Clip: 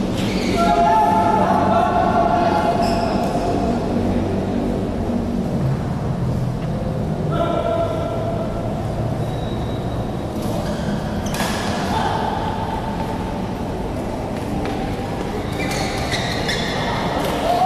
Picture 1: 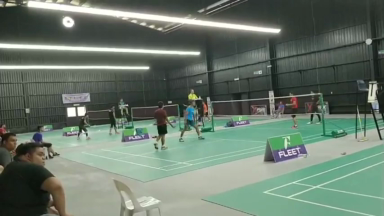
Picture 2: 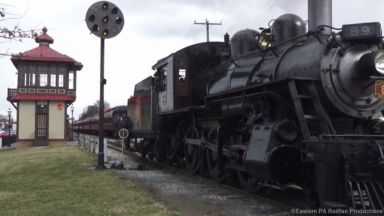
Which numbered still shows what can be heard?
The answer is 1